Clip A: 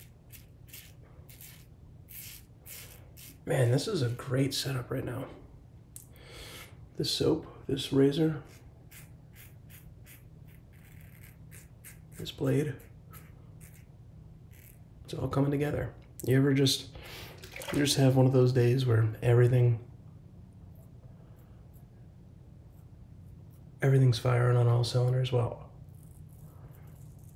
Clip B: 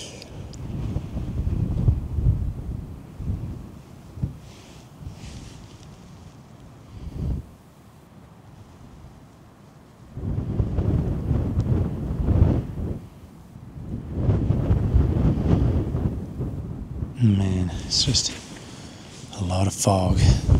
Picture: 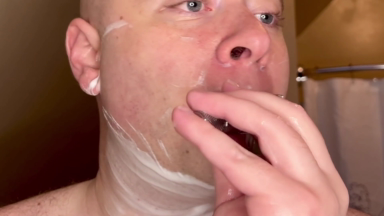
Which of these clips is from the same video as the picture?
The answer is A